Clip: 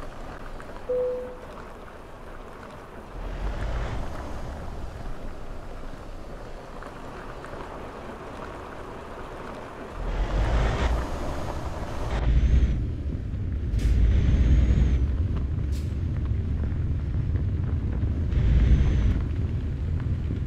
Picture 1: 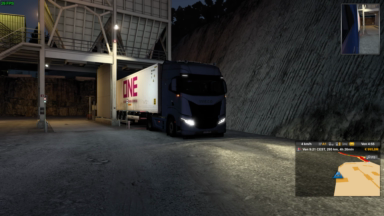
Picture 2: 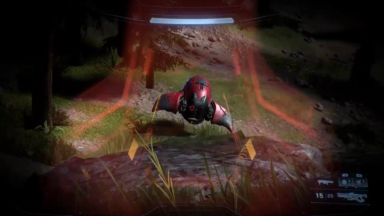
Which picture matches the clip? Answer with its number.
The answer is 1